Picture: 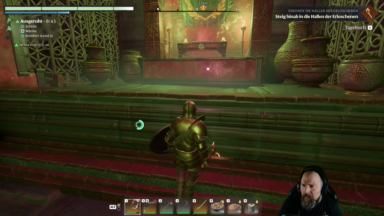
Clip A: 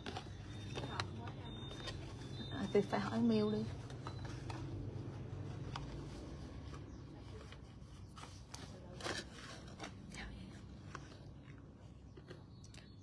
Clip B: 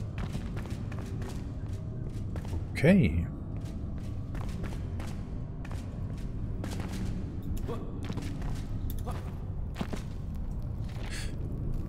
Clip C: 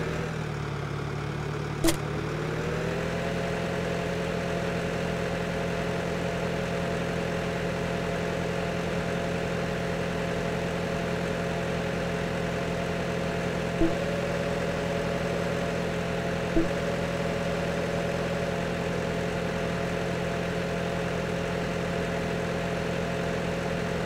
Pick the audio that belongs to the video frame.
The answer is B